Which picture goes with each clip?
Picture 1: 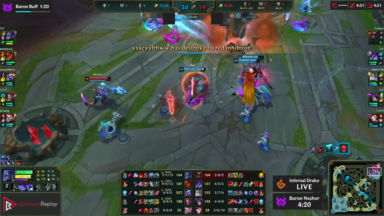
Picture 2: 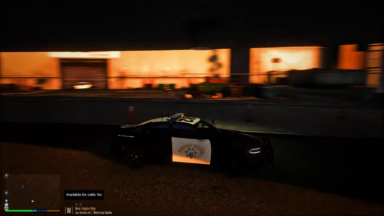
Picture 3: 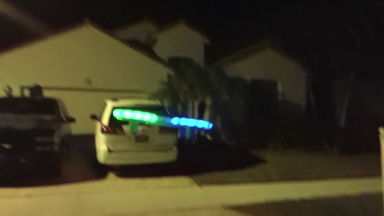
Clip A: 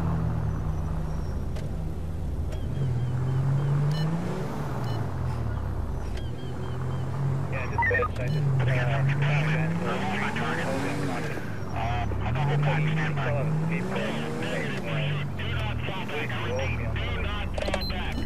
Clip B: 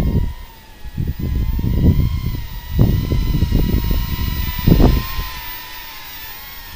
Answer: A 2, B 3